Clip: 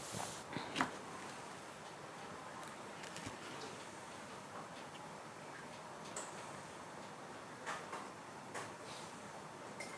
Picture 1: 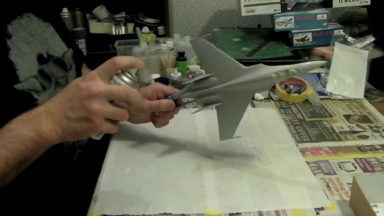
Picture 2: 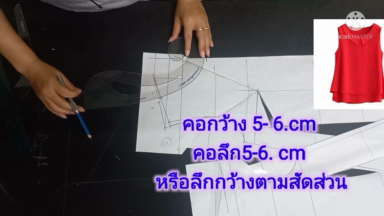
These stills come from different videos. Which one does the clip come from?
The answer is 2